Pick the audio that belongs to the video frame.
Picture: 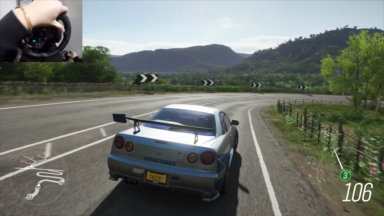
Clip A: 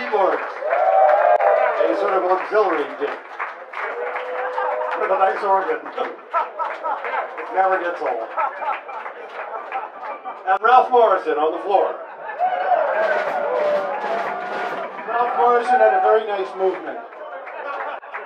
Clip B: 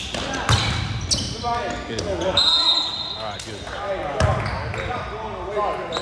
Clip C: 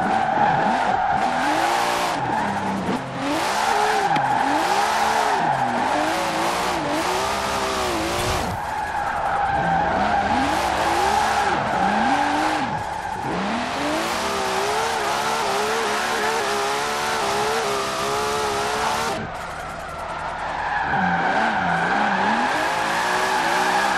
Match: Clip C